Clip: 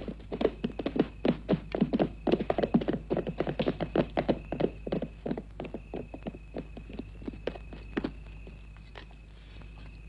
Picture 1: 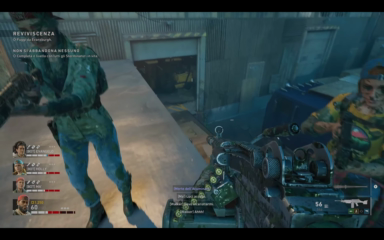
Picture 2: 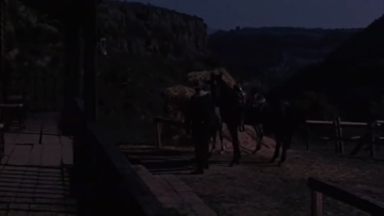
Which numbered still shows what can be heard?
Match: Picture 2